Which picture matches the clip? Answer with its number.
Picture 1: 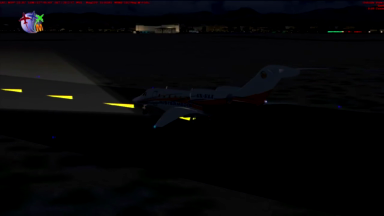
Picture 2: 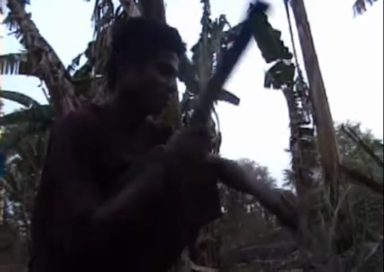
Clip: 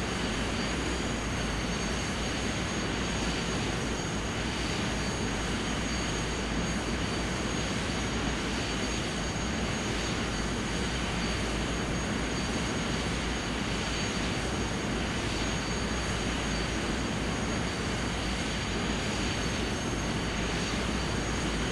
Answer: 1